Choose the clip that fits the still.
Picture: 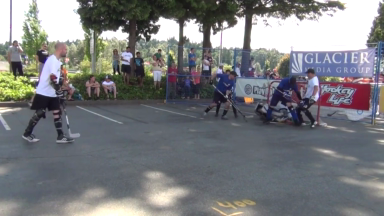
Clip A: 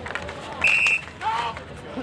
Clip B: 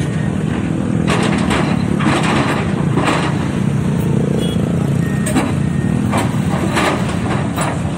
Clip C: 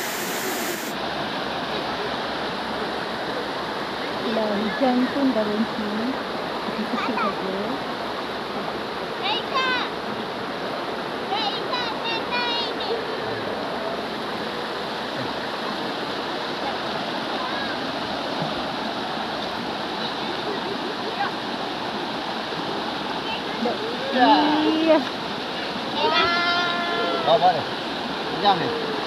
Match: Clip A